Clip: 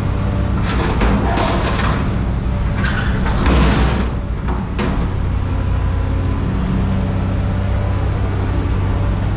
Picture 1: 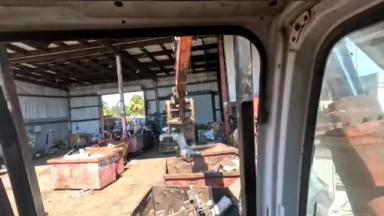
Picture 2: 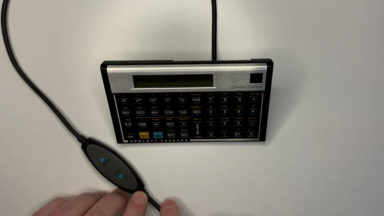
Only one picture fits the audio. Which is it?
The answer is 1